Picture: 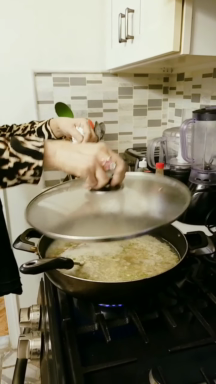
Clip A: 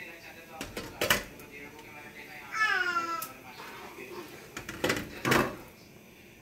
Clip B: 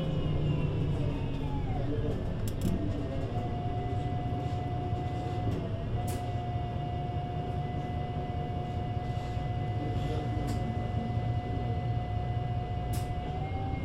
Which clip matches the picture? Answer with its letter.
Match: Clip A